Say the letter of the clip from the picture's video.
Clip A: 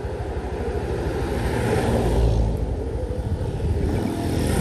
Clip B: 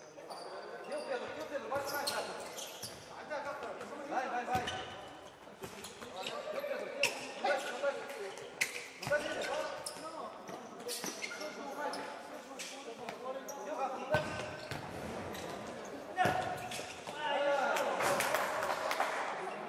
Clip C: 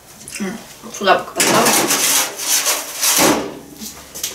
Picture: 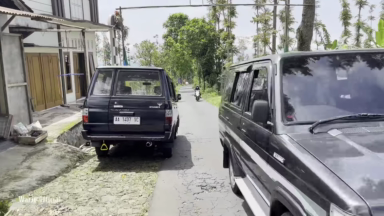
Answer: A